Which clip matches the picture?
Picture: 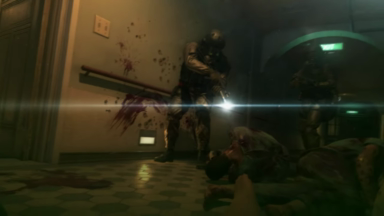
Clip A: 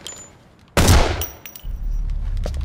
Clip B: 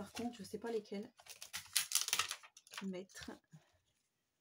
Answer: A